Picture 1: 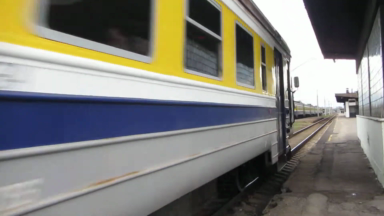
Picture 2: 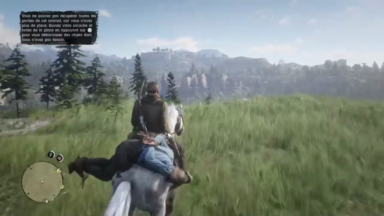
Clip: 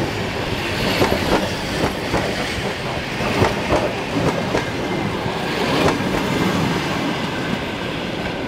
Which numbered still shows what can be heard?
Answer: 1